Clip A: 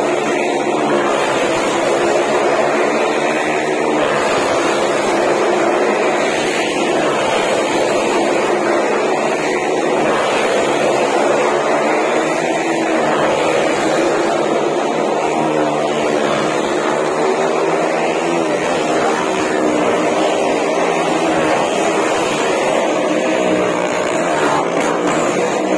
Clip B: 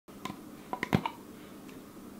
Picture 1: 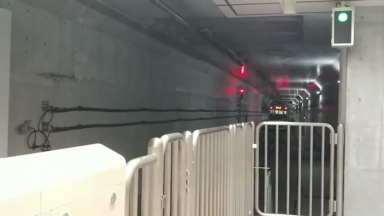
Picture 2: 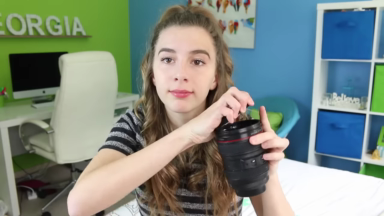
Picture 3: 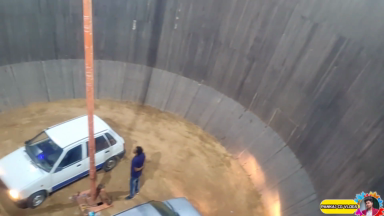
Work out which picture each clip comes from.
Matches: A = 3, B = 2